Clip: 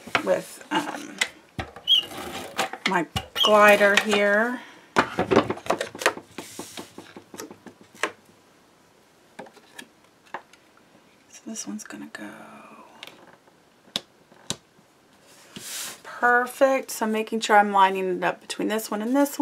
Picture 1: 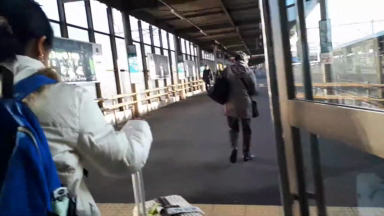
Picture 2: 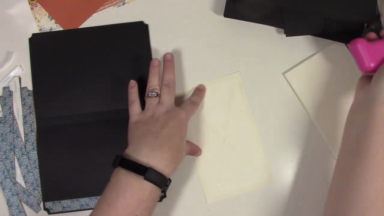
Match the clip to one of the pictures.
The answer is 2